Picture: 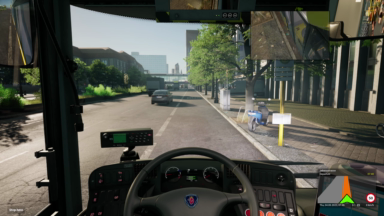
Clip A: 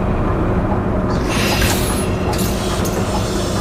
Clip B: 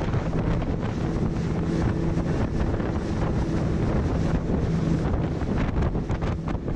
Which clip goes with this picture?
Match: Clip A